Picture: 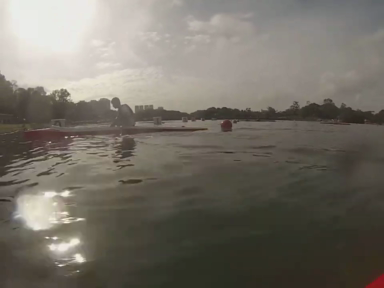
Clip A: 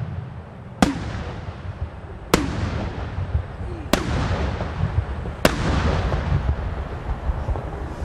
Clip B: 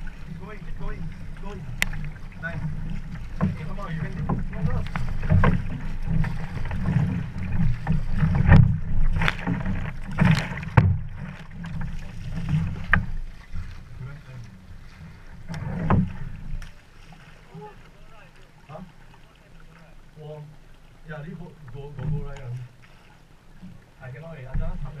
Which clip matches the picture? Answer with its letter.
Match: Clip B